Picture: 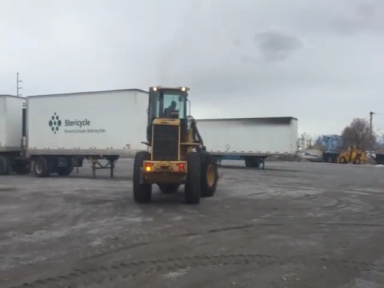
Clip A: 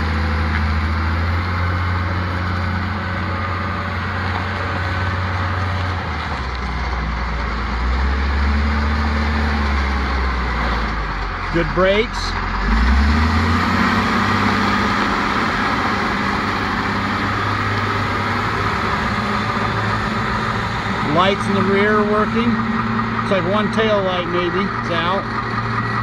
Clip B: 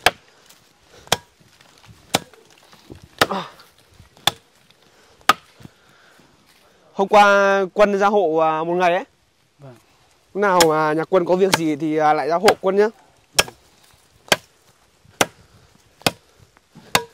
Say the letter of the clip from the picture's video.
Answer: A